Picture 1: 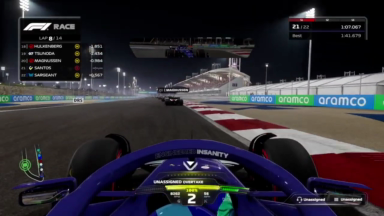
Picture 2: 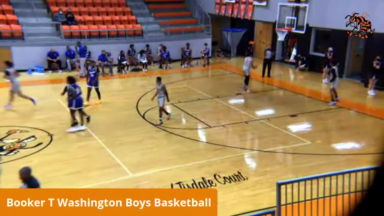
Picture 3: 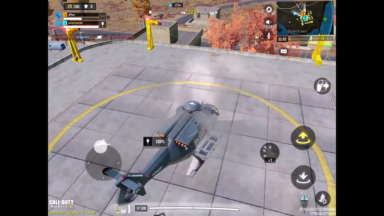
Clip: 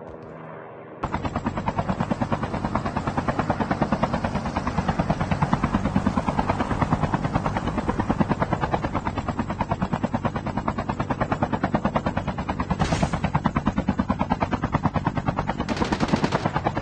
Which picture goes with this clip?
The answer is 3